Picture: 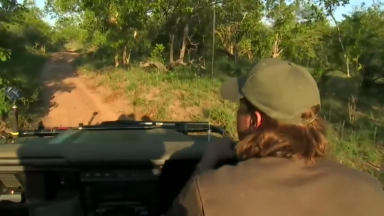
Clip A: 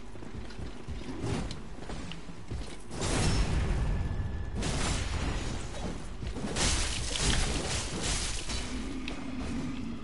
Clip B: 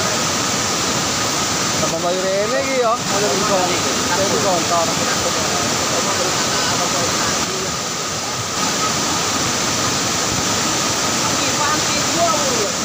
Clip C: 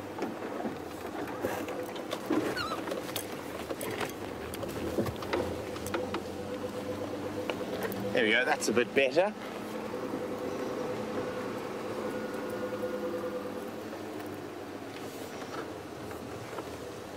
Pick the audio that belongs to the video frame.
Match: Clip C